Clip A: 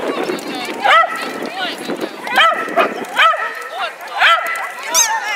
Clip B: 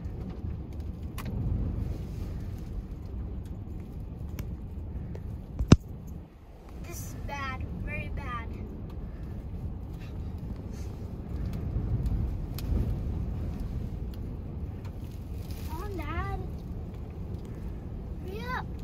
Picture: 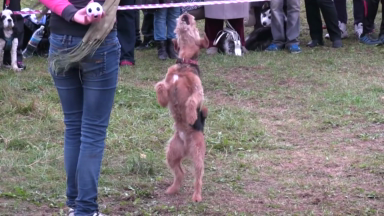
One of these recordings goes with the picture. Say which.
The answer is A